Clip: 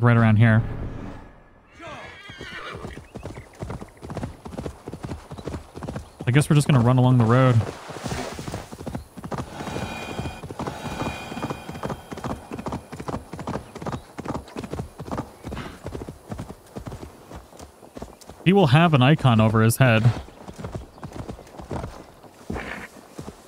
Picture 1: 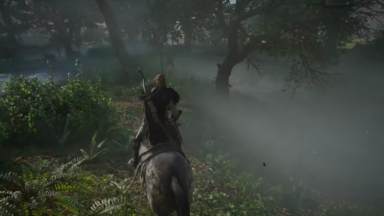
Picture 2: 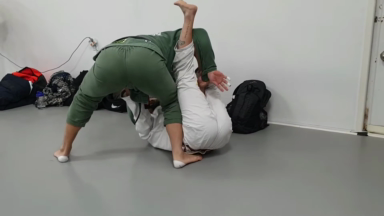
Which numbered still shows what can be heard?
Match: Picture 1